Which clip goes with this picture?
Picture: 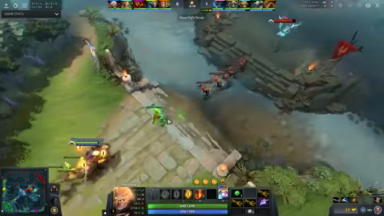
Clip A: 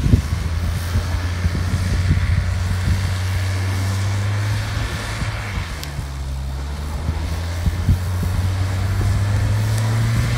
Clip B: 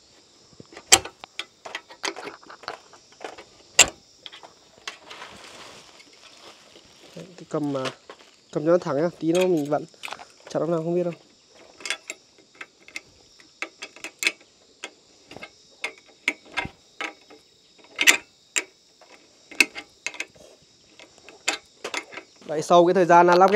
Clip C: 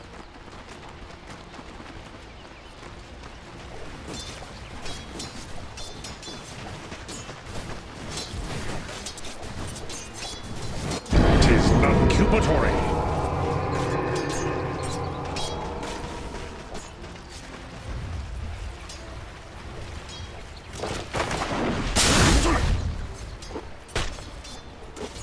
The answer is C